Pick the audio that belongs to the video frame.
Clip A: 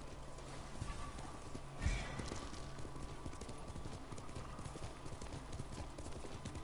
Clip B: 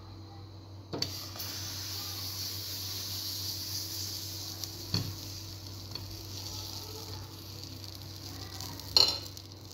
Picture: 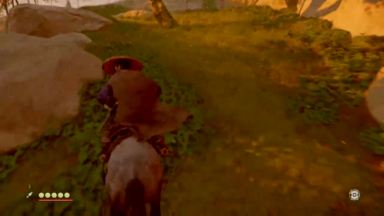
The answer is A